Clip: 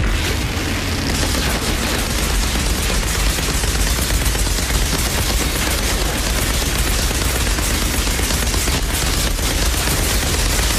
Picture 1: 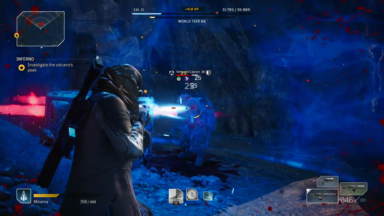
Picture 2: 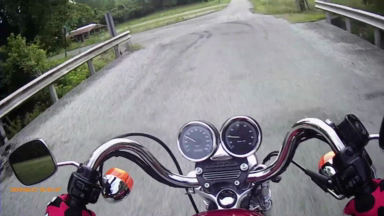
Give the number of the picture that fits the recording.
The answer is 1